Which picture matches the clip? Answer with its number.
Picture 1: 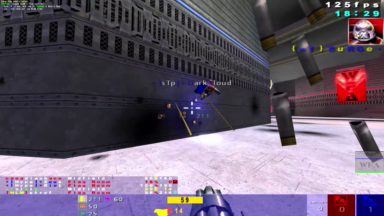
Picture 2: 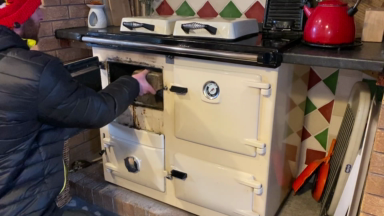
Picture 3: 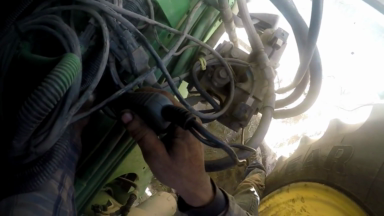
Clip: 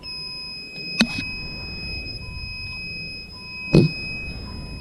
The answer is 3